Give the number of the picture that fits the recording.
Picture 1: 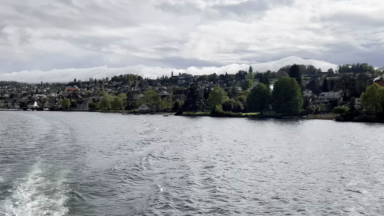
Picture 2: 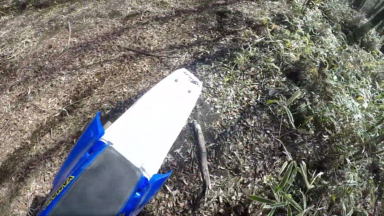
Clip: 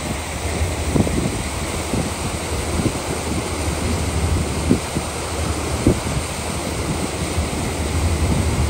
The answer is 1